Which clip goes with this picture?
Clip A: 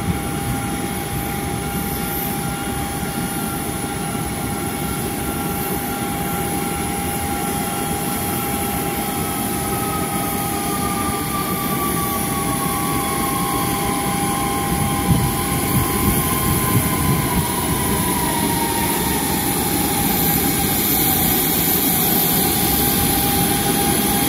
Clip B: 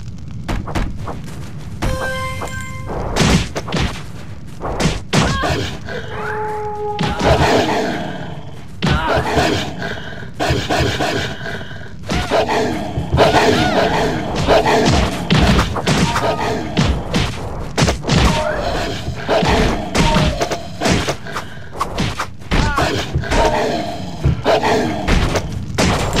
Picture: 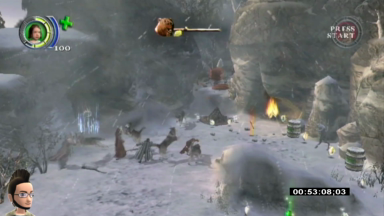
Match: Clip B